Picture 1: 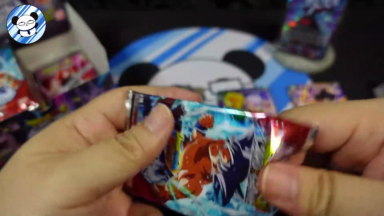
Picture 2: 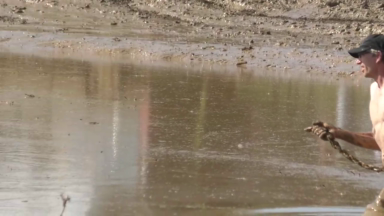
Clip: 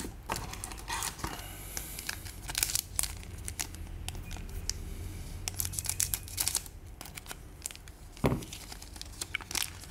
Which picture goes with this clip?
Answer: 1